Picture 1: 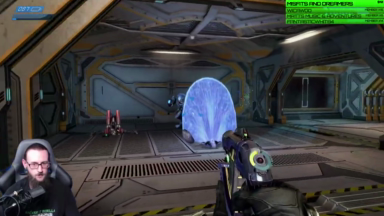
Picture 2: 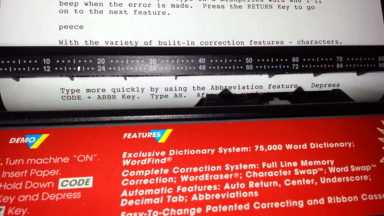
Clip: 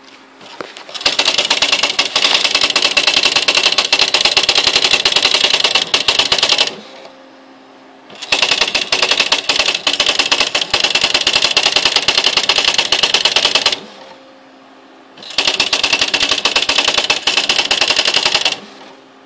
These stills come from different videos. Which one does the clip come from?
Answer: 2